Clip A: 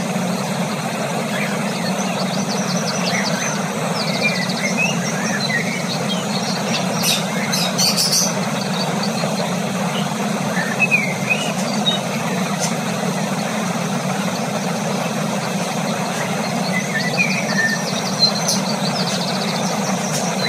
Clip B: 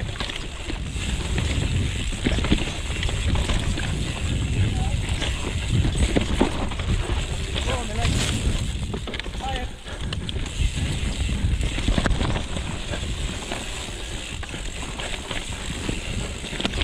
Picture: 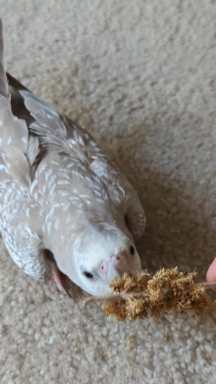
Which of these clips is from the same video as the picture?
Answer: A